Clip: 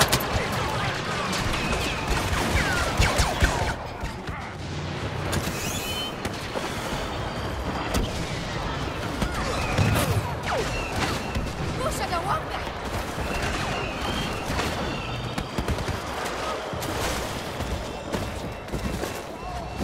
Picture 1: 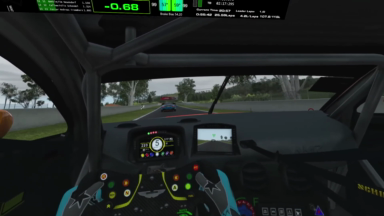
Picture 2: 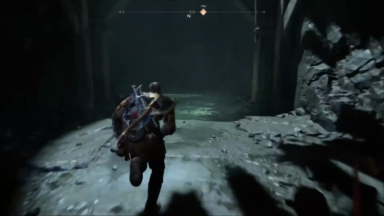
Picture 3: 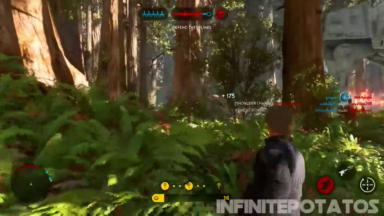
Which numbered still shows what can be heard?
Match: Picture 3